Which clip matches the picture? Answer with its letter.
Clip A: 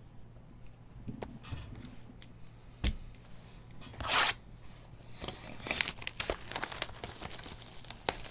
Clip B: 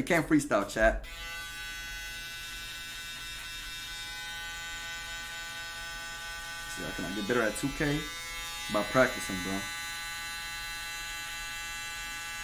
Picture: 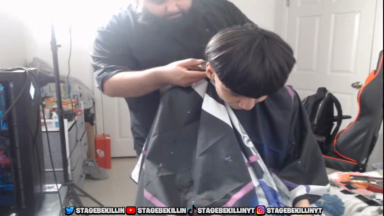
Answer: B